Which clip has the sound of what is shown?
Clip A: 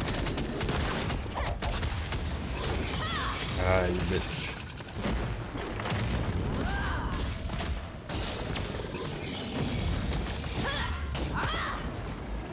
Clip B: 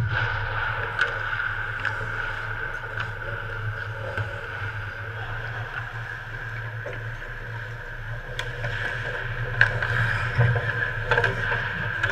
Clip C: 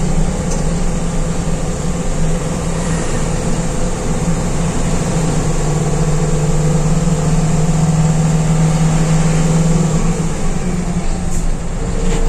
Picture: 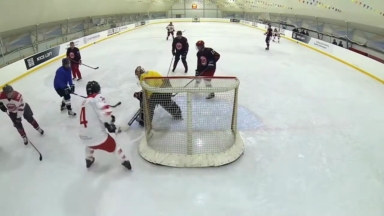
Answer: B